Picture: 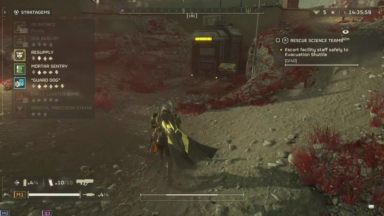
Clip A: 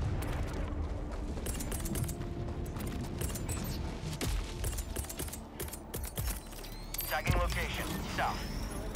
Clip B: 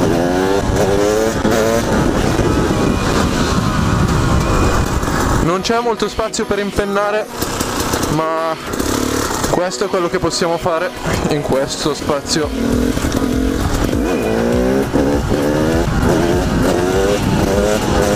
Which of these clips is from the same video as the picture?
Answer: A